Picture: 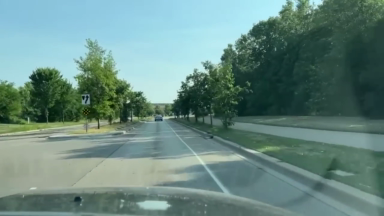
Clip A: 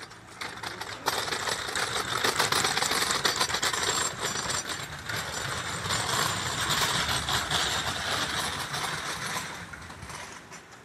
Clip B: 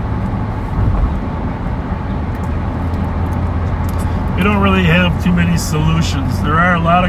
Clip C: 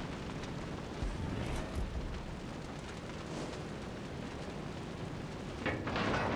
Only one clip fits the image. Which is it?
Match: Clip B